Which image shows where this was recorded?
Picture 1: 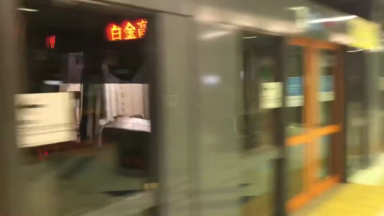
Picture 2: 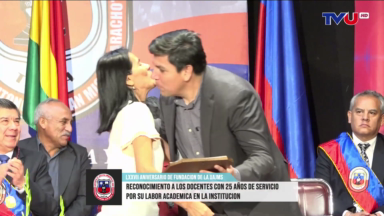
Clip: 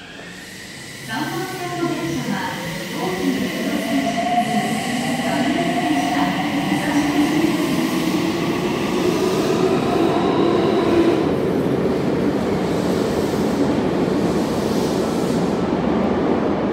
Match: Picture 1